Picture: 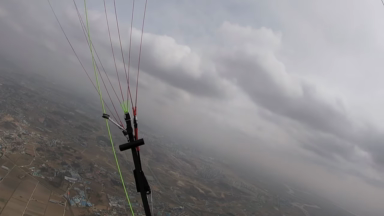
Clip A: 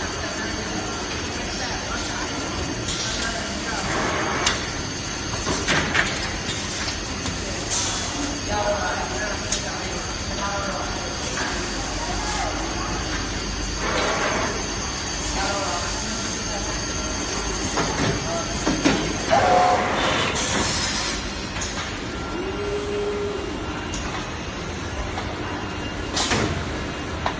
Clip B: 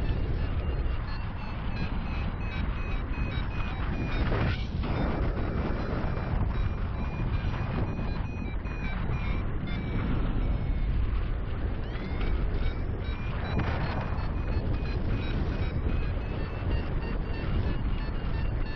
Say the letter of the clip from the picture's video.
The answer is B